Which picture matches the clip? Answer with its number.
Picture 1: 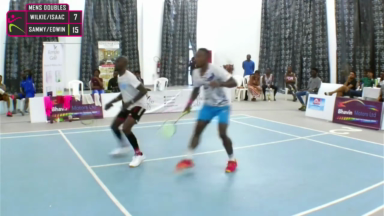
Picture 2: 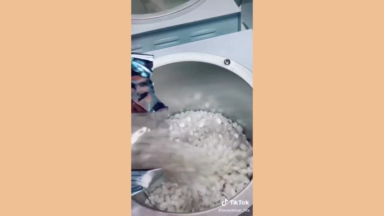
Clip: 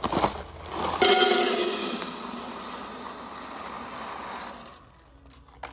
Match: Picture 2